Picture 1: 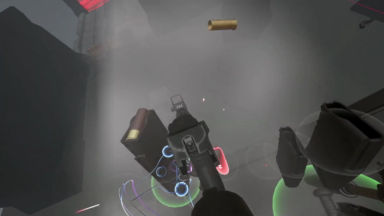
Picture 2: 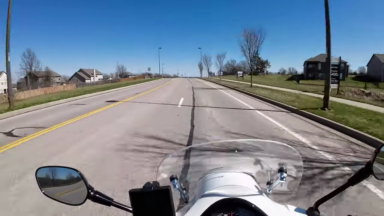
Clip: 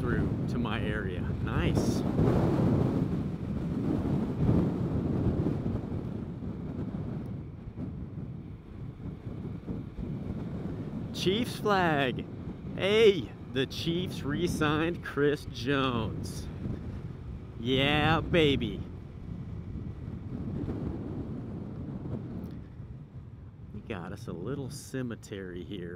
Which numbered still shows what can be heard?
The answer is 2